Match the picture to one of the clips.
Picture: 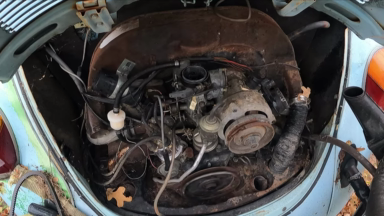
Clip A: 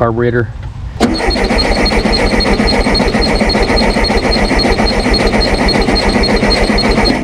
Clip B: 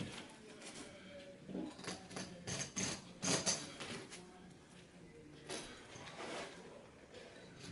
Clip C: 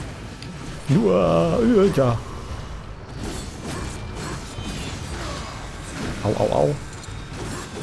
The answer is A